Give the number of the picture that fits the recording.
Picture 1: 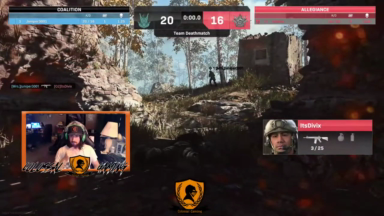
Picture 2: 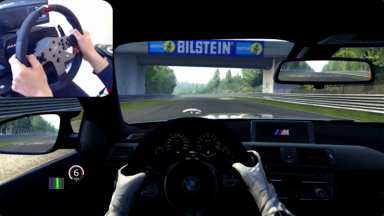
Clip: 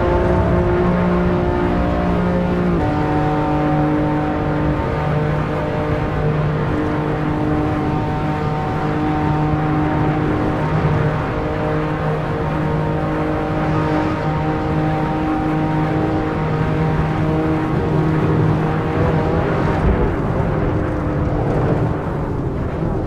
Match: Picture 2